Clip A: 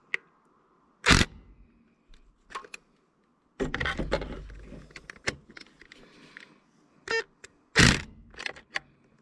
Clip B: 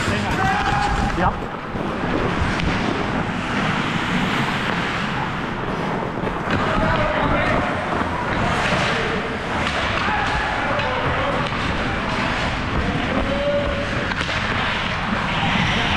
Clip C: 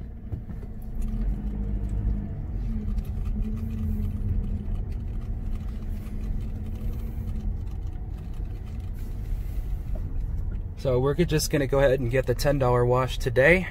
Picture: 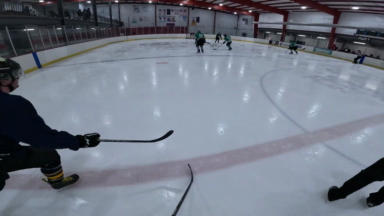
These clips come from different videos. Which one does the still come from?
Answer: B